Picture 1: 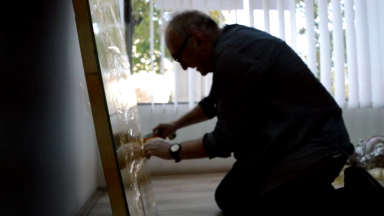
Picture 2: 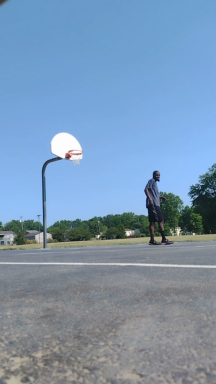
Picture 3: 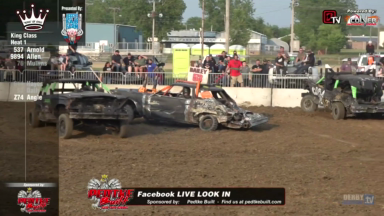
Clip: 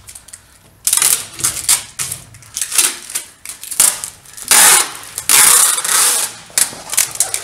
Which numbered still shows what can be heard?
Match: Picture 1